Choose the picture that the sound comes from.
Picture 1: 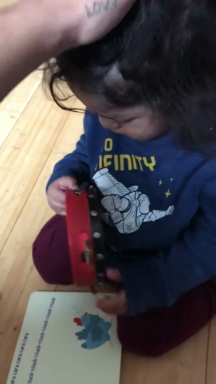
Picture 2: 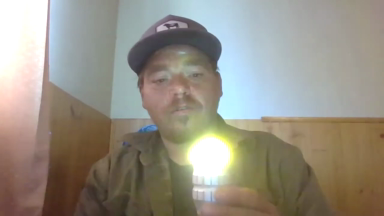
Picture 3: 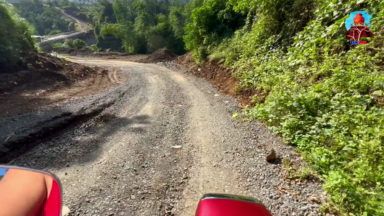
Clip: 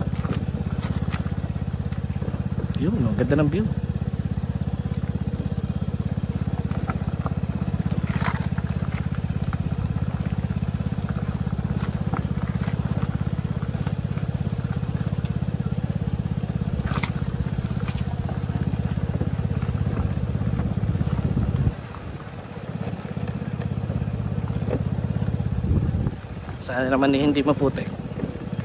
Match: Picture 3